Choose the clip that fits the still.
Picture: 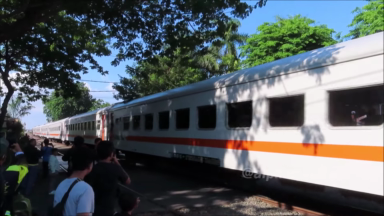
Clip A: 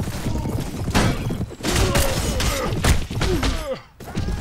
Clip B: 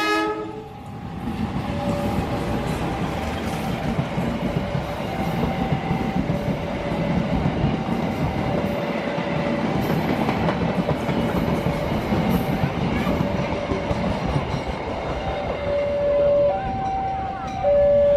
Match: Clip B